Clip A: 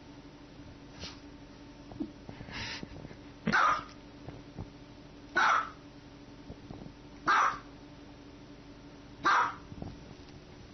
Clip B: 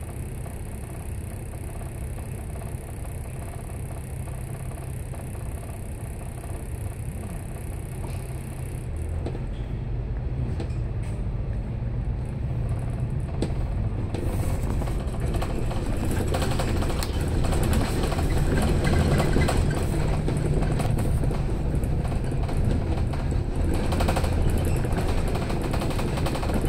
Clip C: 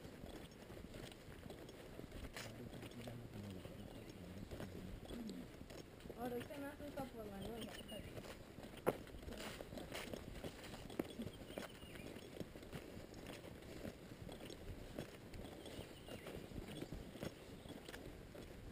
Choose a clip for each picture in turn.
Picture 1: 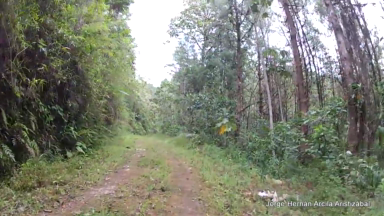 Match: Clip C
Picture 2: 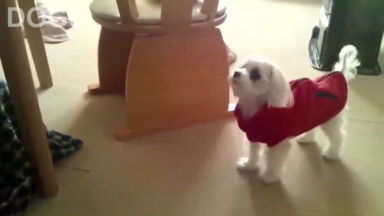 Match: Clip A